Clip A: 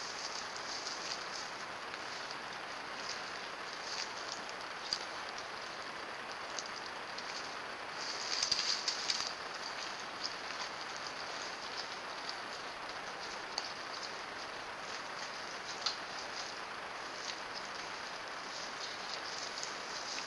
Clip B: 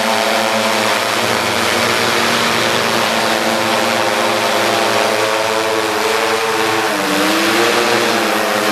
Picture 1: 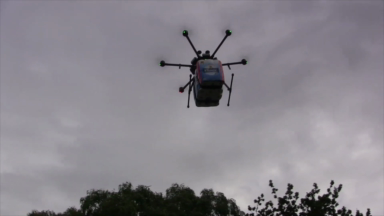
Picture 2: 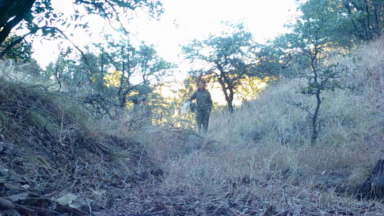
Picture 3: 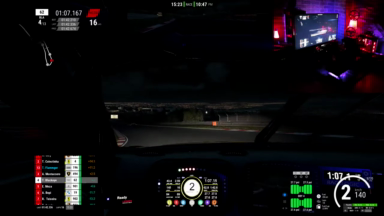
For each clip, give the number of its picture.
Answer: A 2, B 1